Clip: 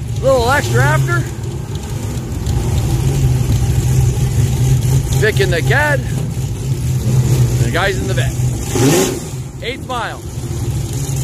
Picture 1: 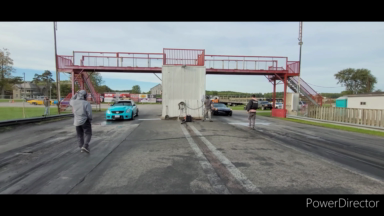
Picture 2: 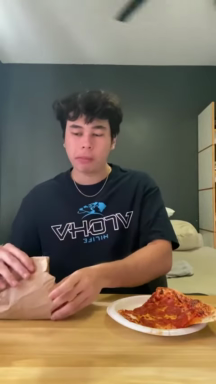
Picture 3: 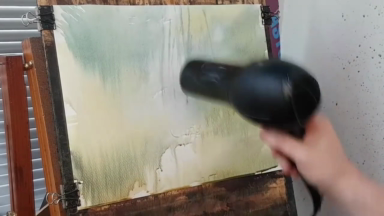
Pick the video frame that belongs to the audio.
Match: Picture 1